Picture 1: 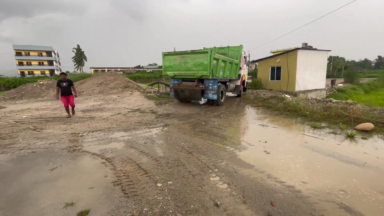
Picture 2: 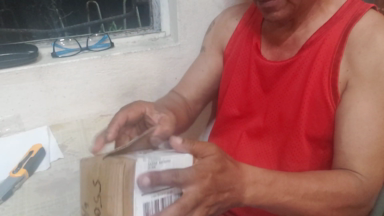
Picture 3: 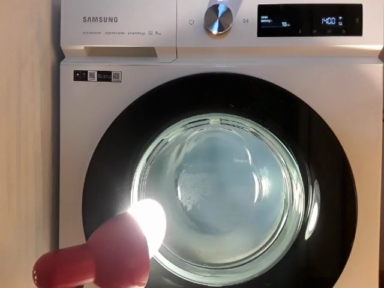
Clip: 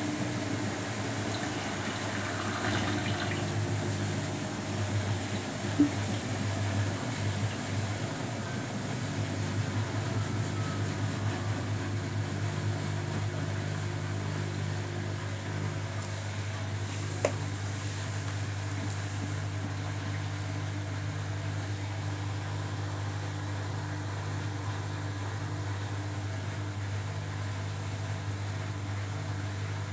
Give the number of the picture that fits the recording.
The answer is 3